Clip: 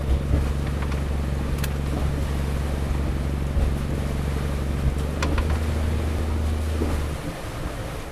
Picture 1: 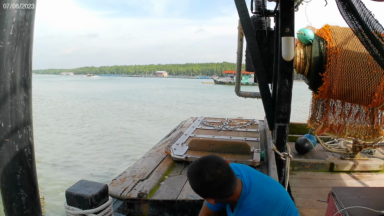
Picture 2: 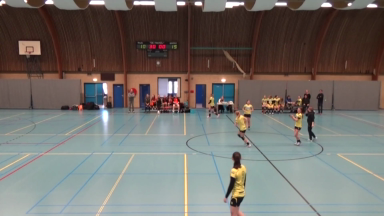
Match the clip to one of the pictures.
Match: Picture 1